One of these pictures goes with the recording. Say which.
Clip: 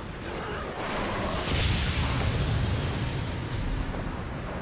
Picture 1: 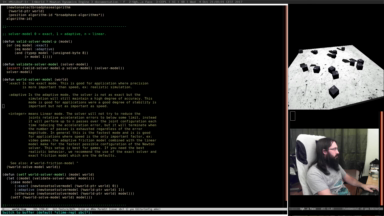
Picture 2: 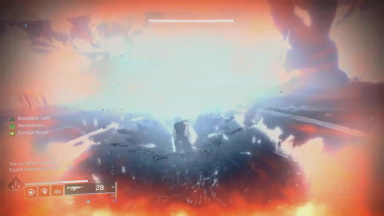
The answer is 2